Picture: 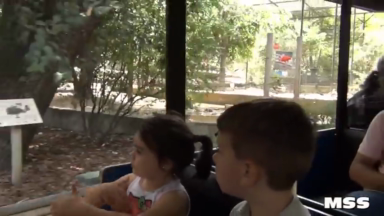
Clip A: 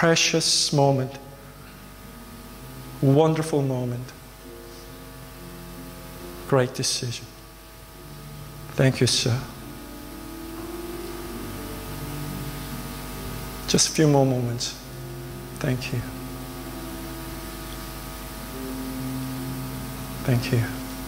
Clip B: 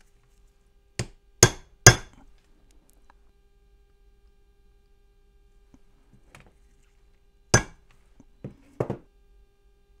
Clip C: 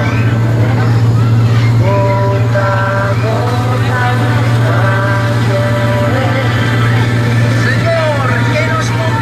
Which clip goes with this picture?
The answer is C